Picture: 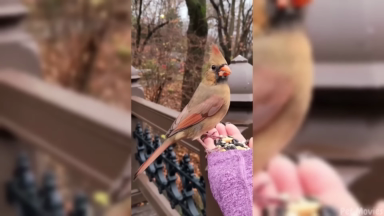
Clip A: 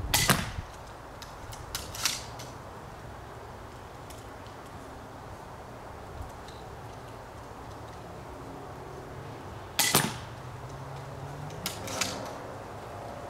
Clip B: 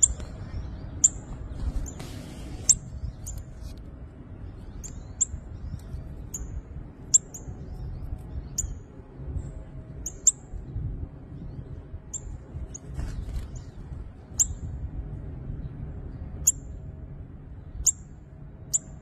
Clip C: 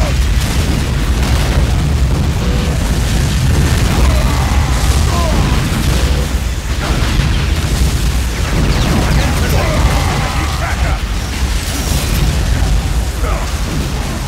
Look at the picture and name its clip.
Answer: B